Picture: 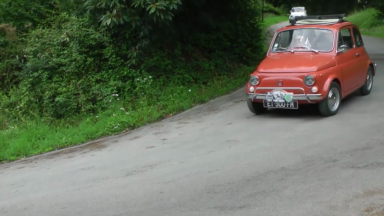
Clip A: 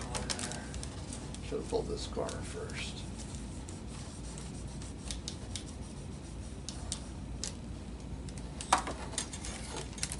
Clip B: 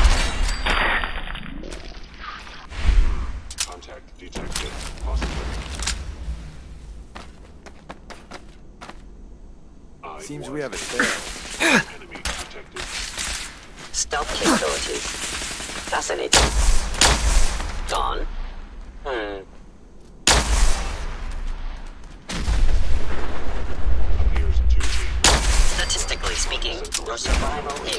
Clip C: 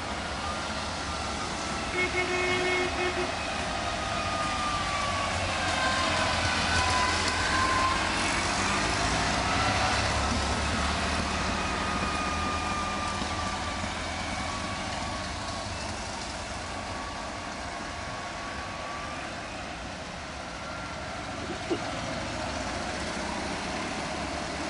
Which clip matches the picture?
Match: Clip C